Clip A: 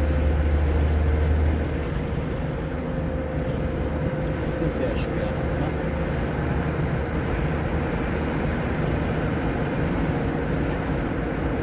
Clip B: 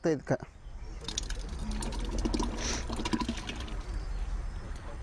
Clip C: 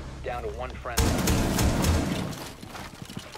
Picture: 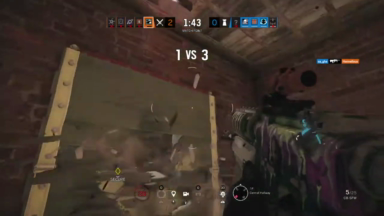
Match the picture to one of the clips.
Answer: C